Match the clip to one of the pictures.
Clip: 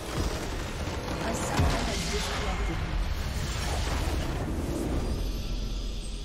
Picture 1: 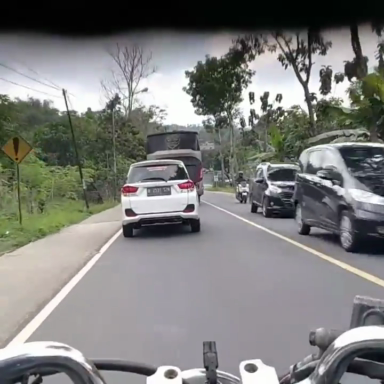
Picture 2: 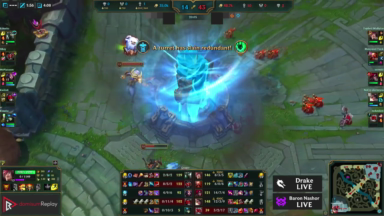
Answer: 2